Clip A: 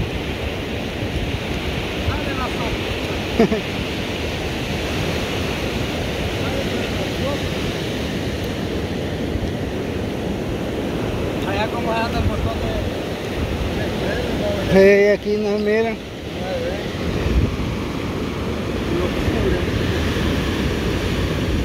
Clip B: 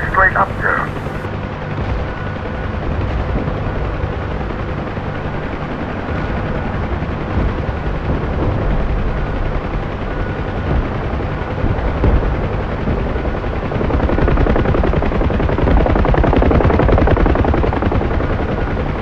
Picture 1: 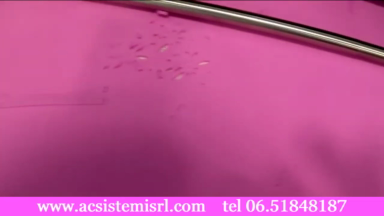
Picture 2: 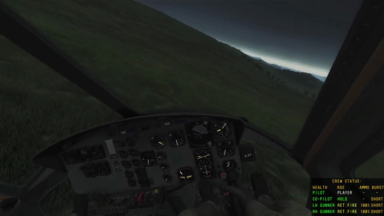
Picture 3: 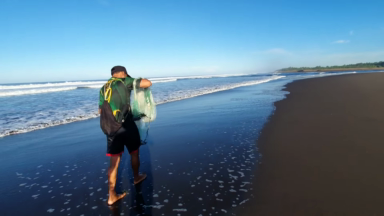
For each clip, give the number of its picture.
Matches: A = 3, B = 2